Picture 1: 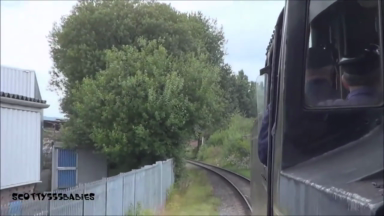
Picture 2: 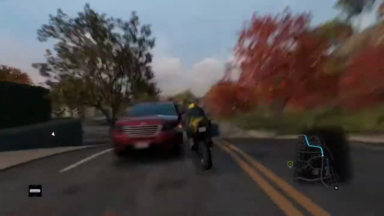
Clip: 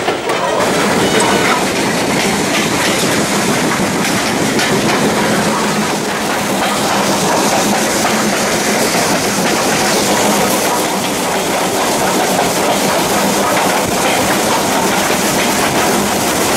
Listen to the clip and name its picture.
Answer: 1